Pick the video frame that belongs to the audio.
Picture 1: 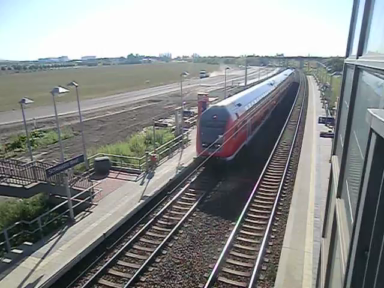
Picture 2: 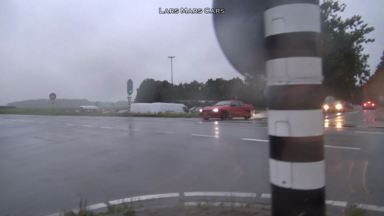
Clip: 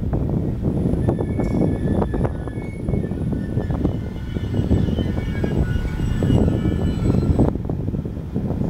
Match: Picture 1